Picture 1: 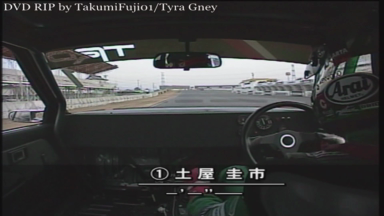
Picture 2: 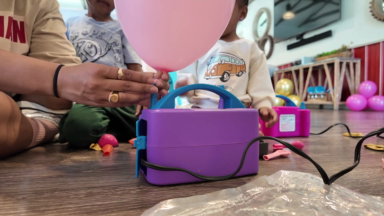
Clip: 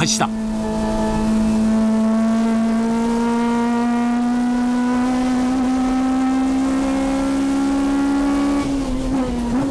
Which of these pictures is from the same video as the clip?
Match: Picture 1